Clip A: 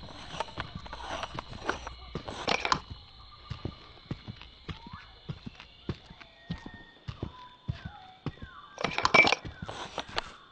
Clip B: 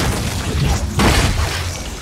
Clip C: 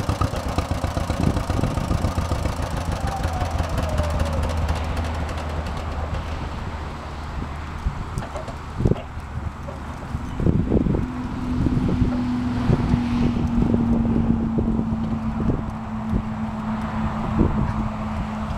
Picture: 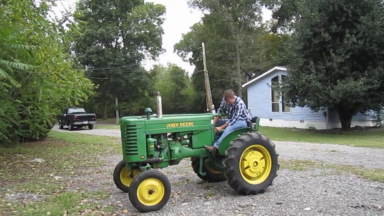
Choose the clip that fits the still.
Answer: C